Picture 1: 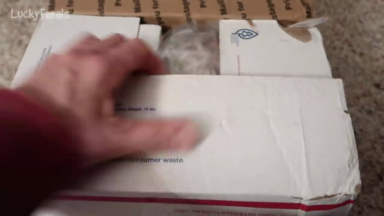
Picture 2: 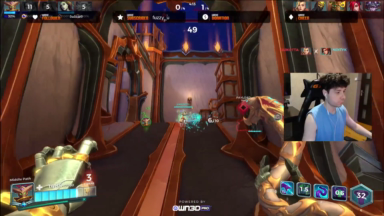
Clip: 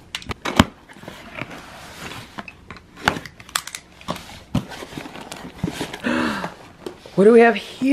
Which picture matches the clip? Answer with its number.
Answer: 1